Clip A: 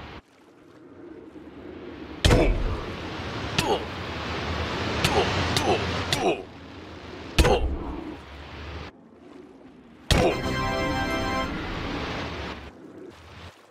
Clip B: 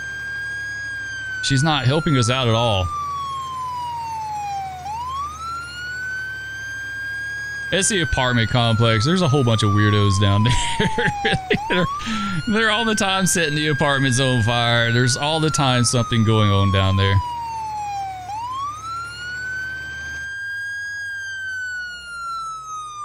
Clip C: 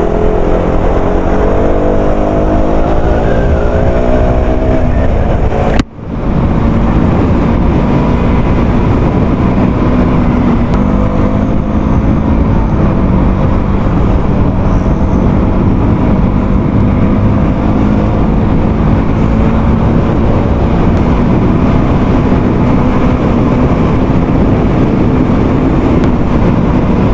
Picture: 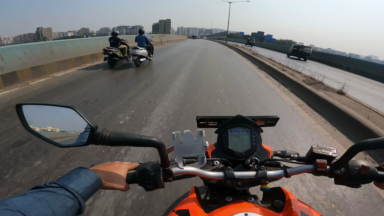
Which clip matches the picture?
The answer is C